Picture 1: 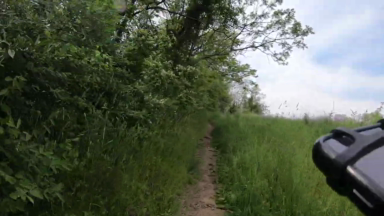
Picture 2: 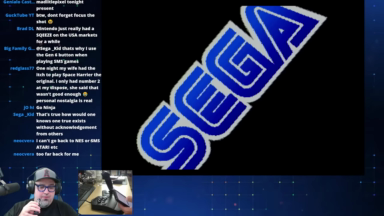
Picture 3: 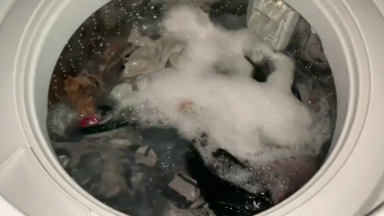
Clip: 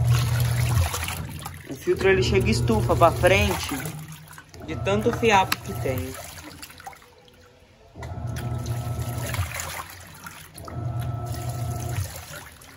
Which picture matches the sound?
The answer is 3